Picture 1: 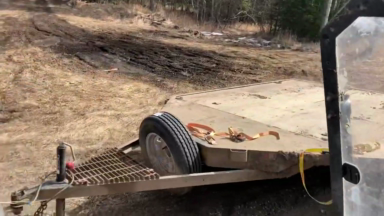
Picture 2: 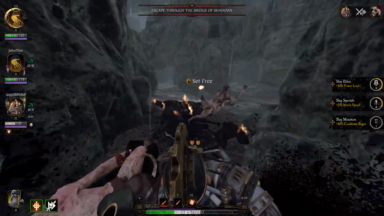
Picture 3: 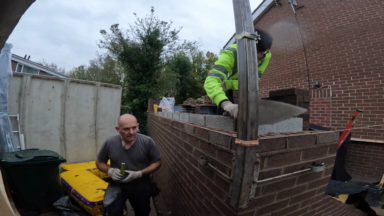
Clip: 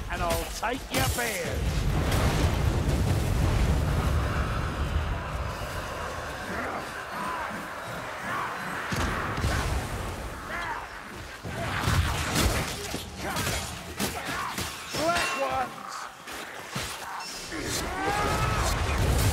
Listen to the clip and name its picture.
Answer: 2